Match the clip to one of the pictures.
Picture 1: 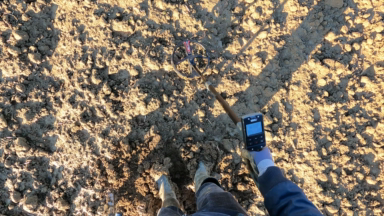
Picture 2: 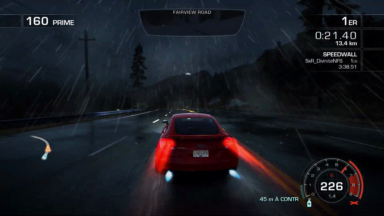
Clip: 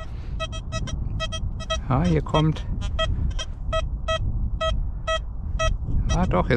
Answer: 1